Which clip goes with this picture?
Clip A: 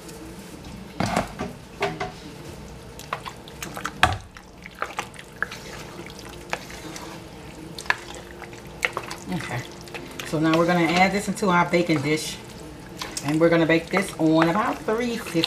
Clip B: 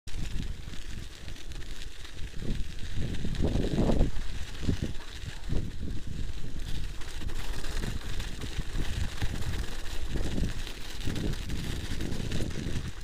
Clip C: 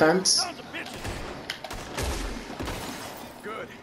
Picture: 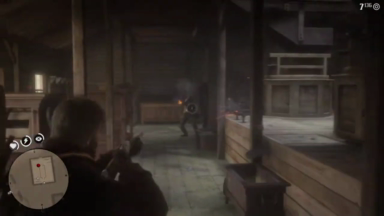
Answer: C